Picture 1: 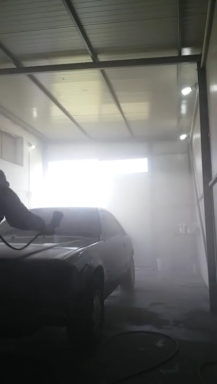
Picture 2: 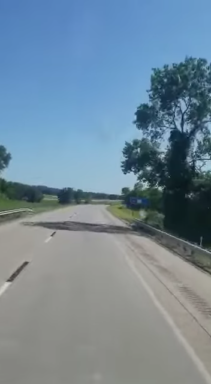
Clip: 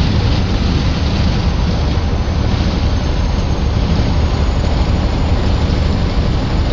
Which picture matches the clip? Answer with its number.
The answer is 2